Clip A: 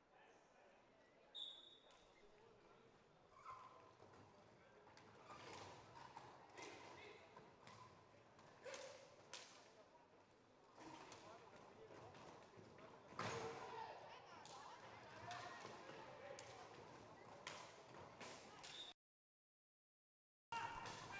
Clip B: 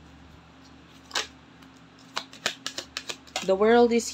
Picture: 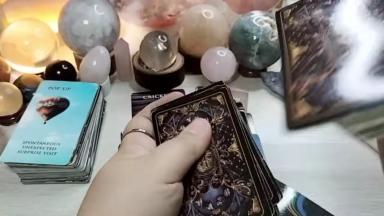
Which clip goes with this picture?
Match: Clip B